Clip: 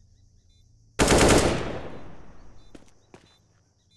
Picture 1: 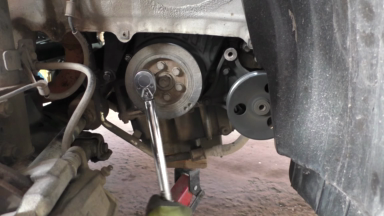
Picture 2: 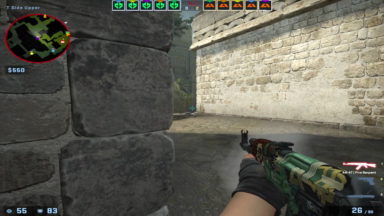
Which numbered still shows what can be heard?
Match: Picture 2